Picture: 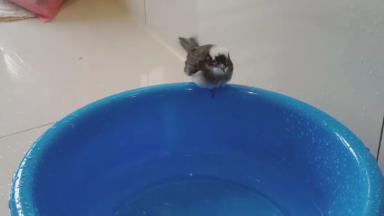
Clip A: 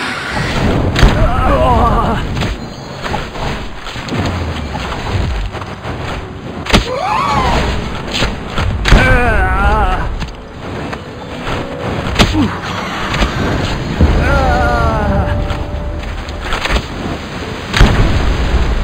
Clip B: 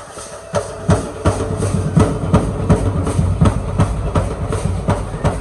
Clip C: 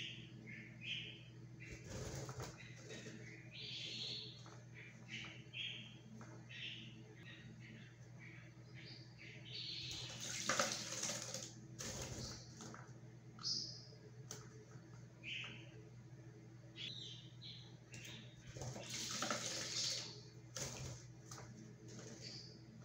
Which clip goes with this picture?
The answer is C